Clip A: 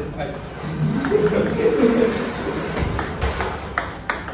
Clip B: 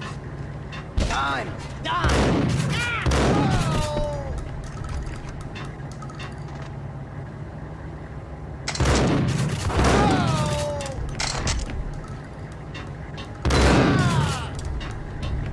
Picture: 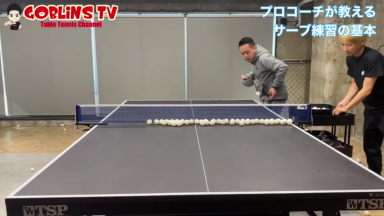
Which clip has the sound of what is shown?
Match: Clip A